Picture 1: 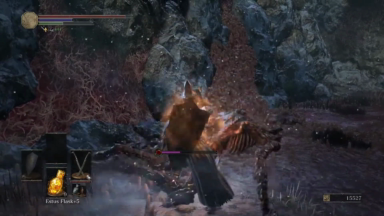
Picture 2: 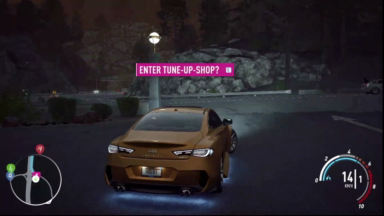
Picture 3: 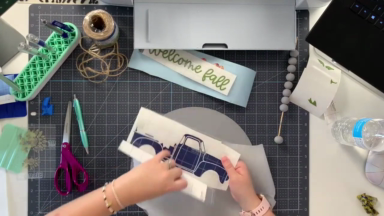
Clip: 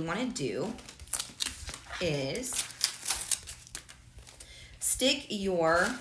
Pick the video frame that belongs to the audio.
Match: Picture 3